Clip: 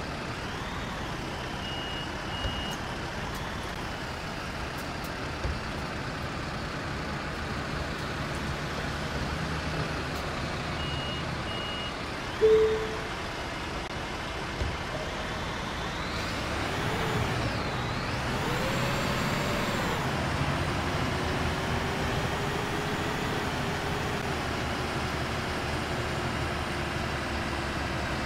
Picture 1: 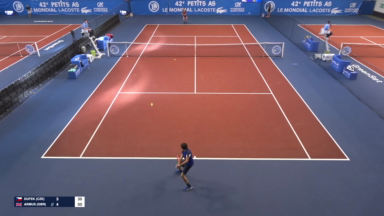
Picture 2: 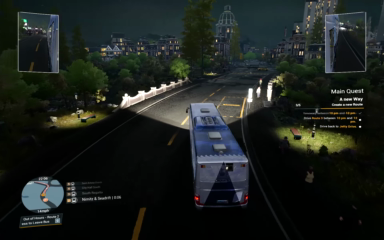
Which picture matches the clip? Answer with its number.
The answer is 2